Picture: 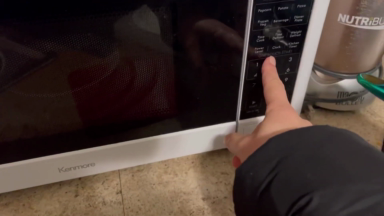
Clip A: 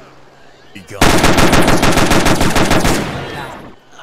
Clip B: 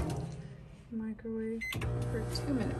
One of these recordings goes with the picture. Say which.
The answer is B